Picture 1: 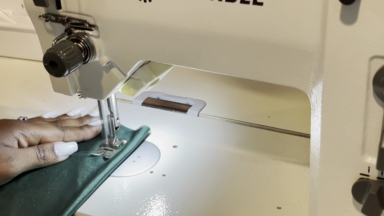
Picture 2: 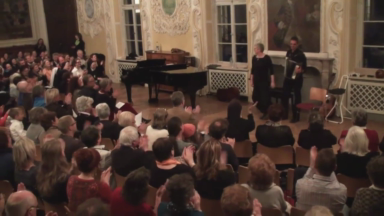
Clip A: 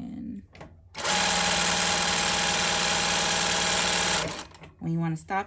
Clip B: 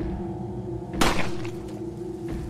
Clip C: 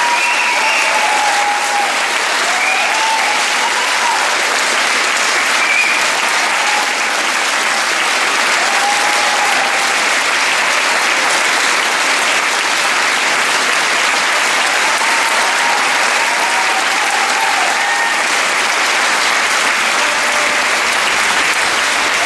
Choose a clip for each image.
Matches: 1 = A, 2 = C